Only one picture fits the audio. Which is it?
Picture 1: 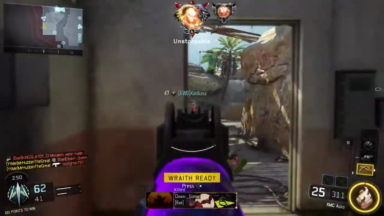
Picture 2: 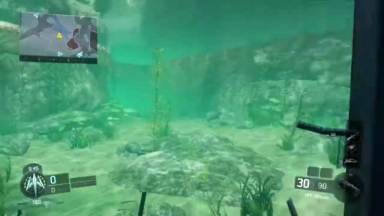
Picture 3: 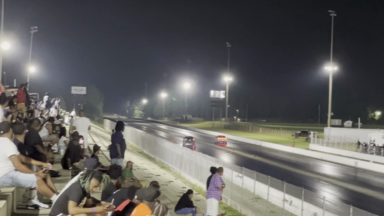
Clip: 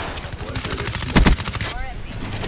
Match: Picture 1